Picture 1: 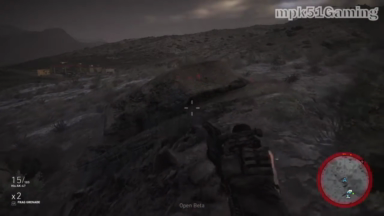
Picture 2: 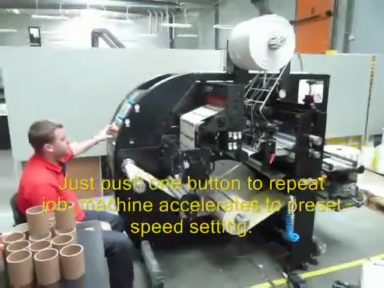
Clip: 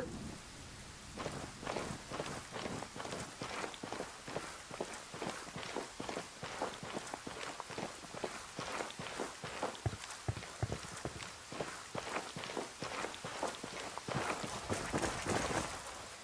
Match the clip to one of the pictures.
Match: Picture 1